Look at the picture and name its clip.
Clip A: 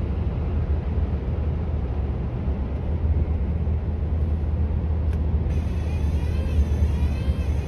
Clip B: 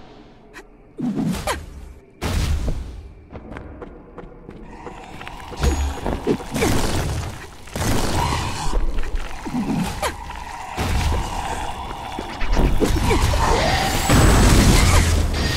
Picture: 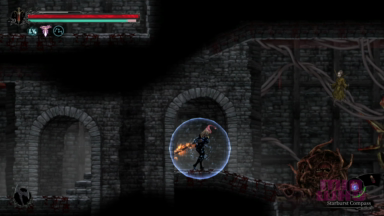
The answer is B